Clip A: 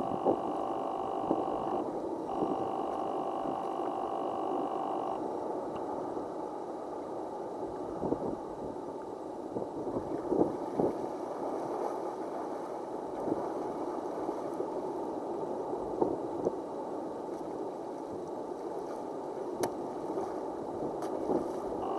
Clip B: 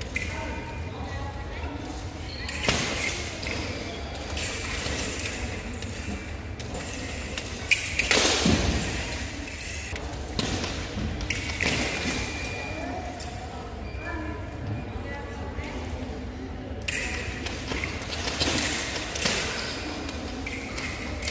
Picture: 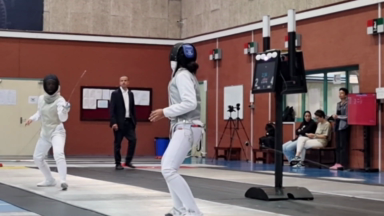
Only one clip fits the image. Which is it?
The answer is B